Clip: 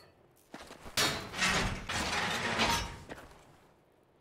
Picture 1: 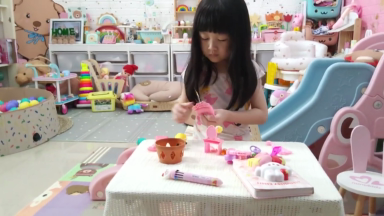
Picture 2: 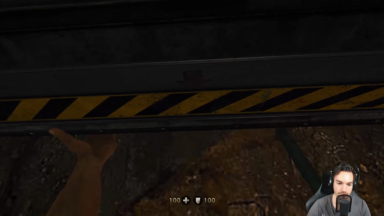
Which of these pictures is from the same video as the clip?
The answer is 2